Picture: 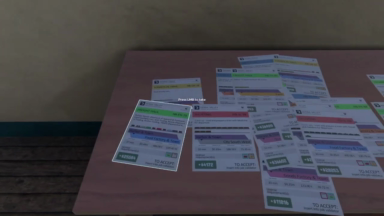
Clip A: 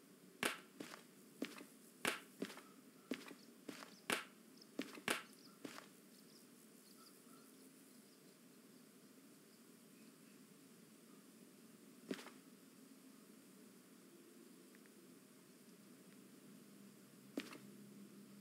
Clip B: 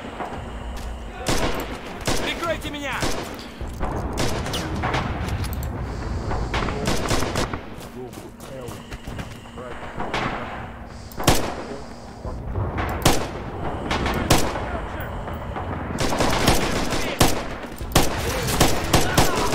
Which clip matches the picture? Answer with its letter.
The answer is A